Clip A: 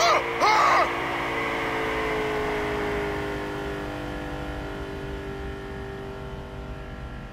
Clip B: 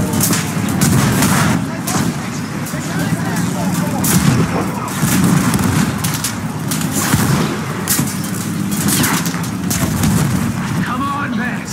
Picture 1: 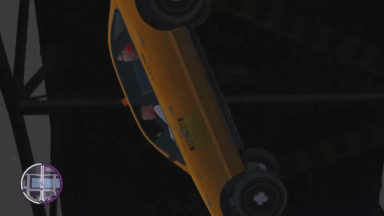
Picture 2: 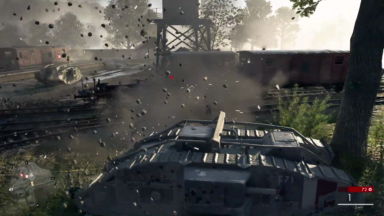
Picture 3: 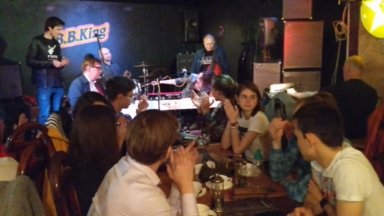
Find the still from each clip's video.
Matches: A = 1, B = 2